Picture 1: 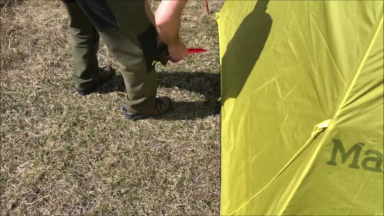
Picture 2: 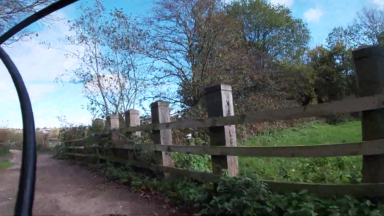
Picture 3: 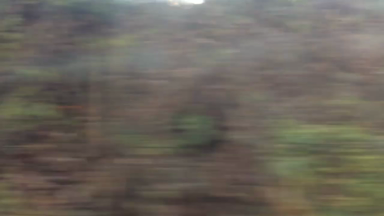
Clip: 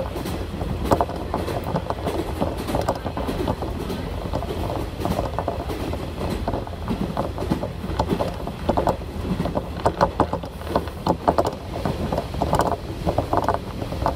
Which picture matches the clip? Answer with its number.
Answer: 3